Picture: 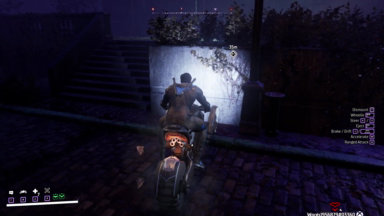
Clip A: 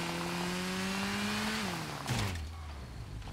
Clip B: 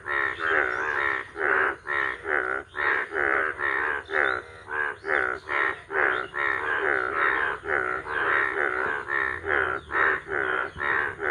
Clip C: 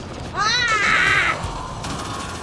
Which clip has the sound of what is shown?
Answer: A